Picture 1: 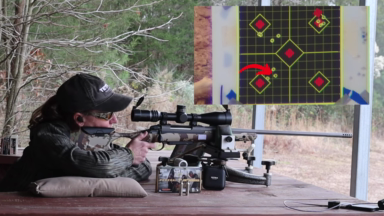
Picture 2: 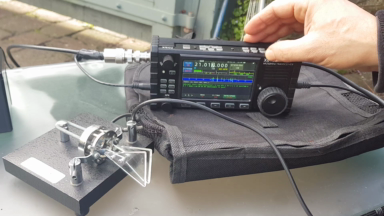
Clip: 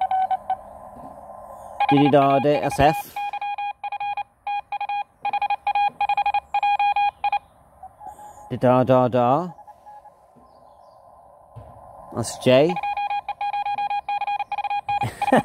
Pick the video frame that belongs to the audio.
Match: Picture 2